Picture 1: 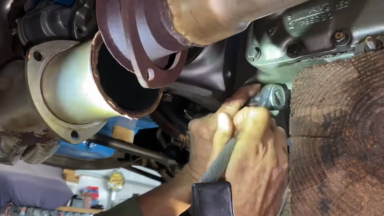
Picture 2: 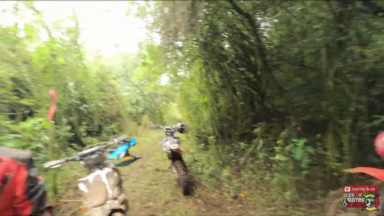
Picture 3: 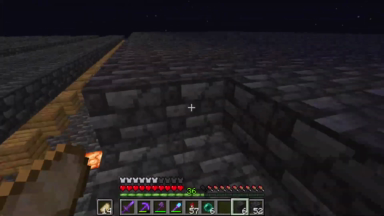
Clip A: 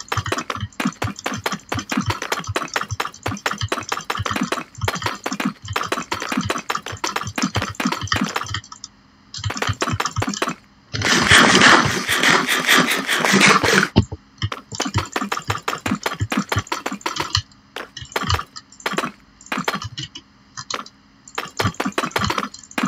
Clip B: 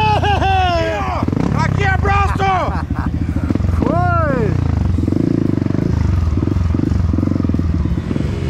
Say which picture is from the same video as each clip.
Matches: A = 3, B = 2